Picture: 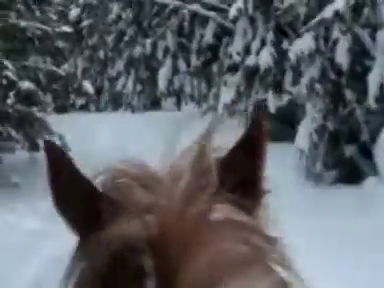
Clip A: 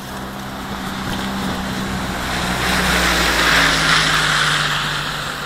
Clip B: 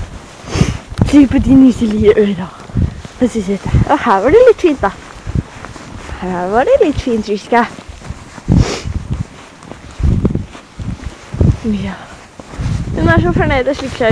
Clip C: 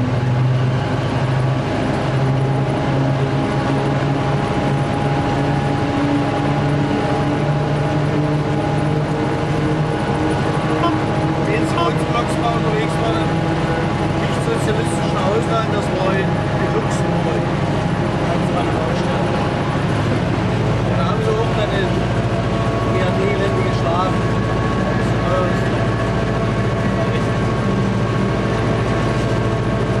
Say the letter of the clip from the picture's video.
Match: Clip B